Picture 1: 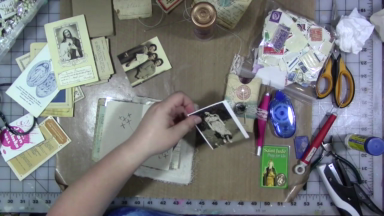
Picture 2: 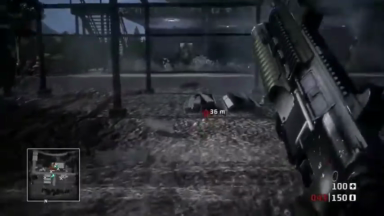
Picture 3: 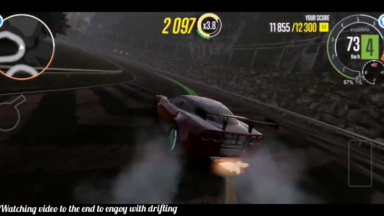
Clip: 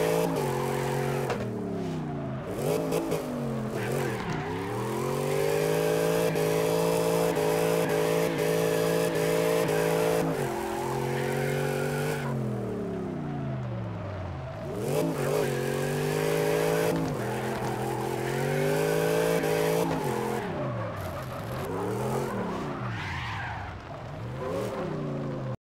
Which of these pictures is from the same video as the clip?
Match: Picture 3